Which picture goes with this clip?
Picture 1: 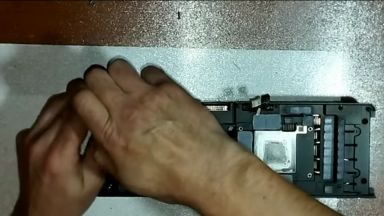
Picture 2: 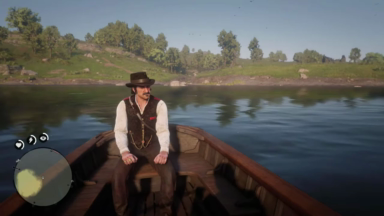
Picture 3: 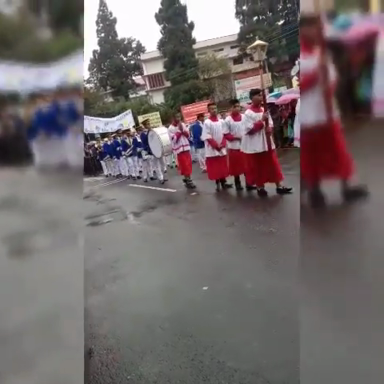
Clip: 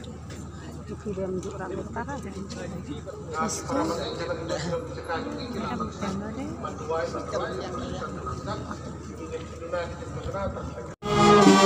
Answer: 3